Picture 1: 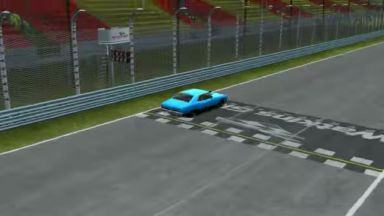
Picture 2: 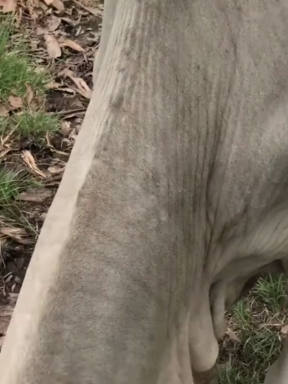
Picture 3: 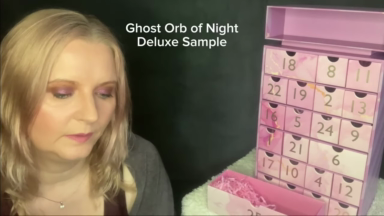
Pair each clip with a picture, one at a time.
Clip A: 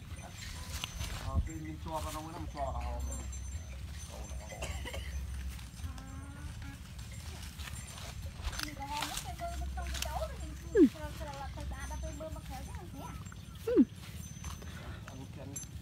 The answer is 2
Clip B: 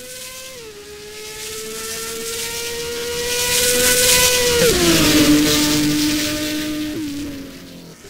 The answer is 1